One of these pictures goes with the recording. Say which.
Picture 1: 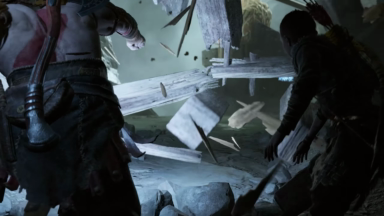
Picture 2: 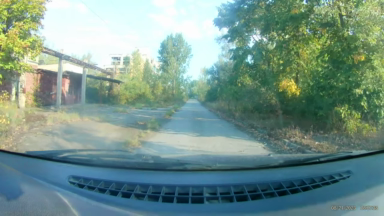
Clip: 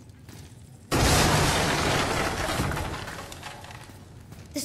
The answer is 1